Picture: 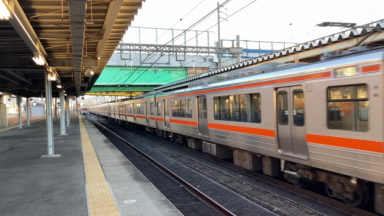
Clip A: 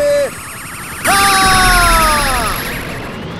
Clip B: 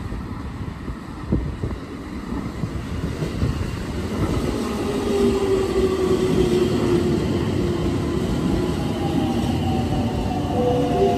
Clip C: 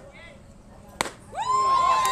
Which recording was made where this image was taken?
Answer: B